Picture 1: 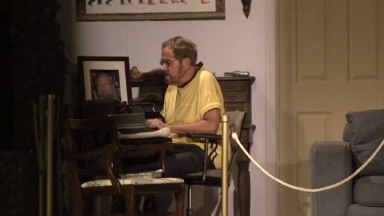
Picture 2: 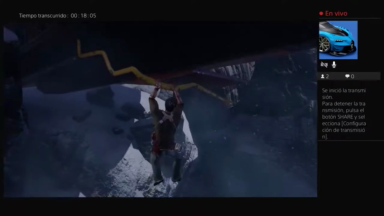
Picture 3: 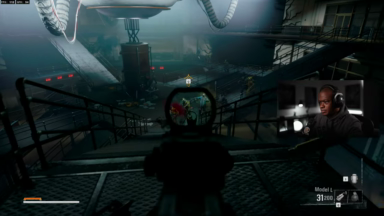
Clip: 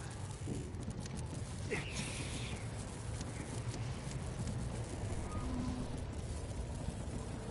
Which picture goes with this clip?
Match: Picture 2